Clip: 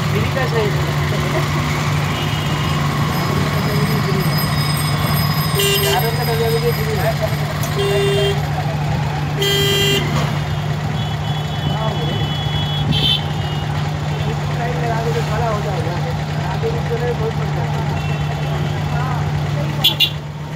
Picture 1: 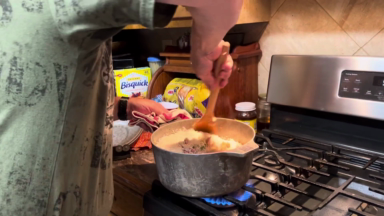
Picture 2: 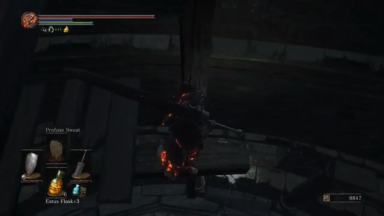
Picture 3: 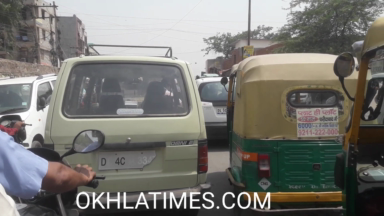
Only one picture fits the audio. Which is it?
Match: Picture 3